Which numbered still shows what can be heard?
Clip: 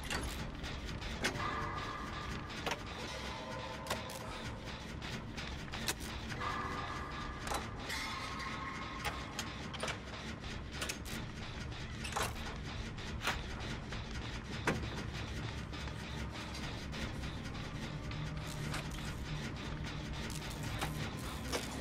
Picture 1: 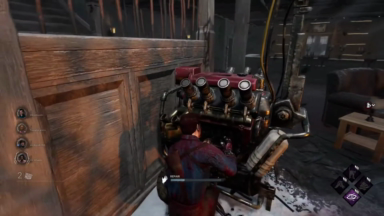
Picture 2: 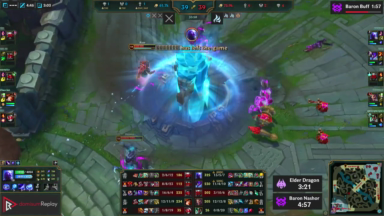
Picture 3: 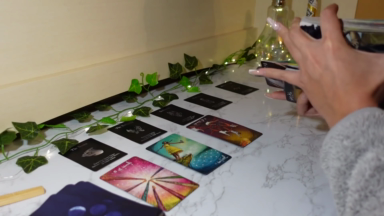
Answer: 1